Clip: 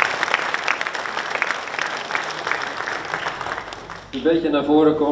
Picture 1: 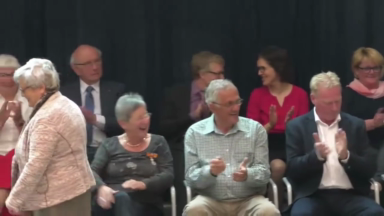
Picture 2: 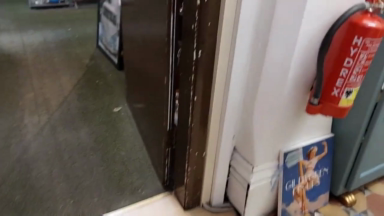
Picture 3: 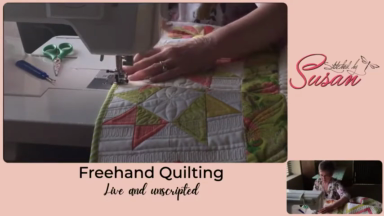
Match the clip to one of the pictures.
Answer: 1